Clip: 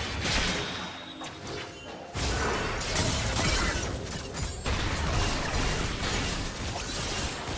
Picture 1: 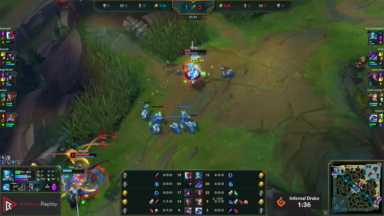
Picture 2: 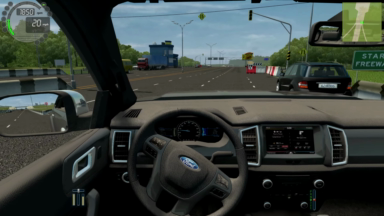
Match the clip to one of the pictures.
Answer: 1